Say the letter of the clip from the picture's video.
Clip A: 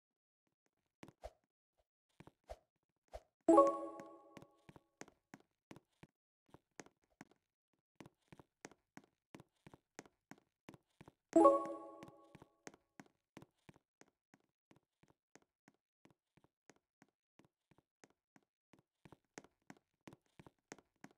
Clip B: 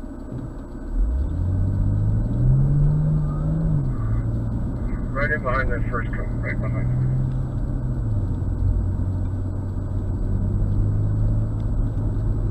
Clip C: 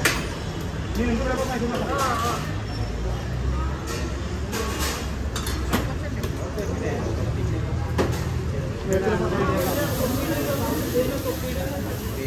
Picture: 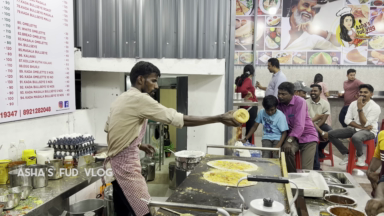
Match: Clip C